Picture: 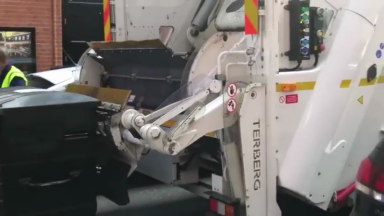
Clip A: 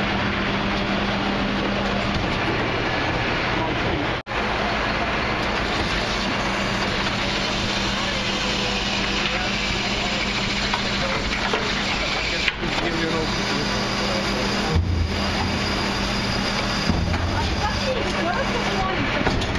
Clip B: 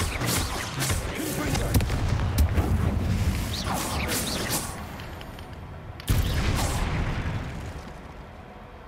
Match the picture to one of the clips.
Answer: A